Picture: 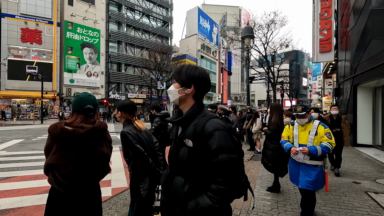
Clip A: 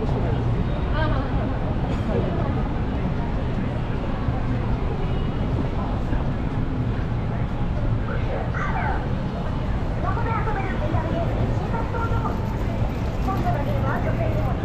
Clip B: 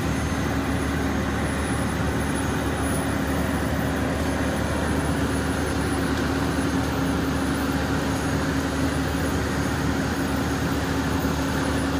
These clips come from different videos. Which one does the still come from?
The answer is A